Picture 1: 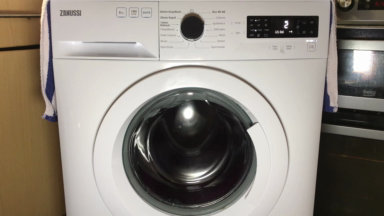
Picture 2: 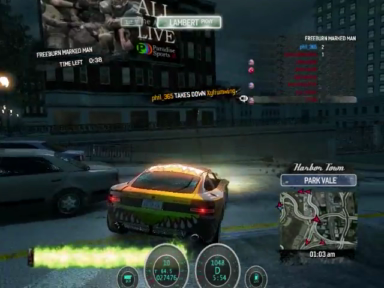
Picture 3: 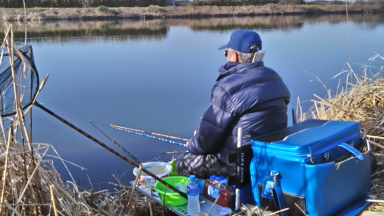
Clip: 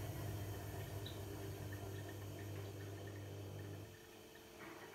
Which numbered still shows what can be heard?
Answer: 1